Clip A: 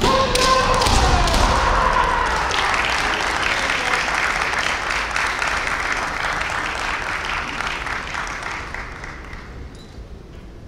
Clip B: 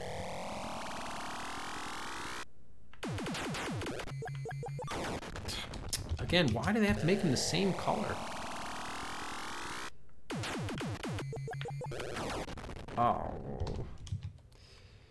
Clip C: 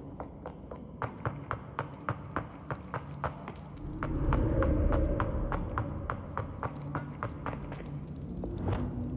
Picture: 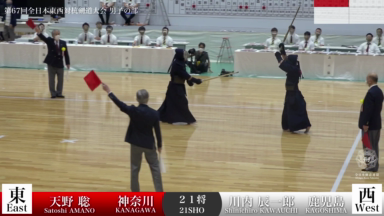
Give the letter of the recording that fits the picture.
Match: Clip A